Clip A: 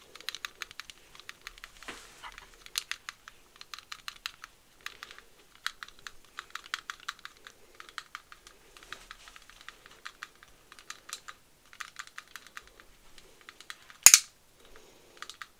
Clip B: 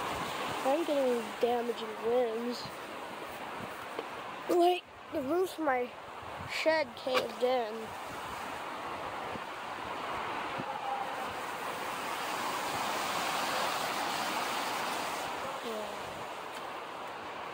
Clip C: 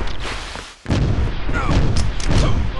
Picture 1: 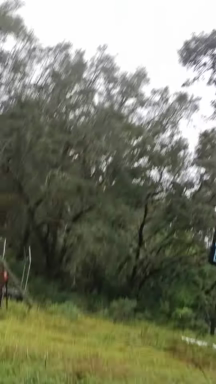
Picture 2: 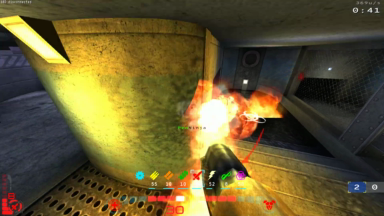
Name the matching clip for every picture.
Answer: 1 B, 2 C